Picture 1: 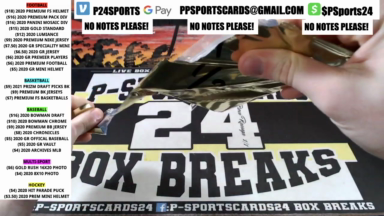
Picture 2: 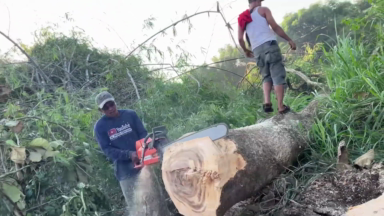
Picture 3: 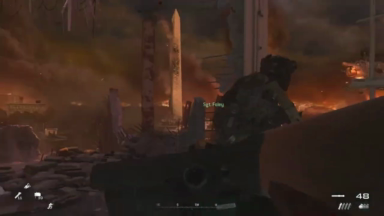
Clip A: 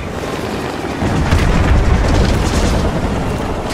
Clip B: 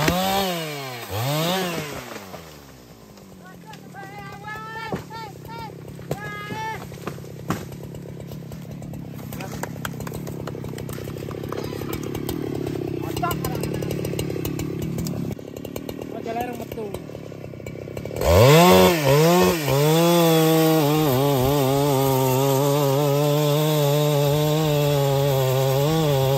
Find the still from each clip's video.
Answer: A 3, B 2